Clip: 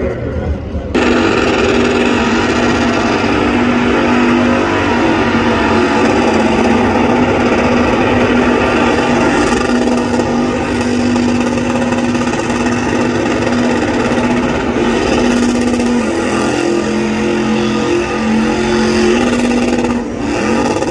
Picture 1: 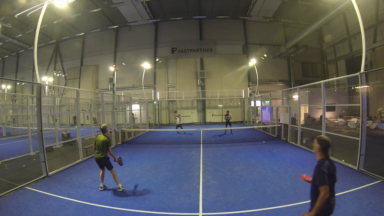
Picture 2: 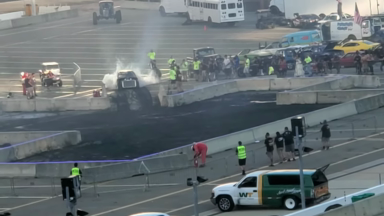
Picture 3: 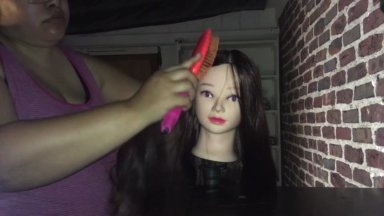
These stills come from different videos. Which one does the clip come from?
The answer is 2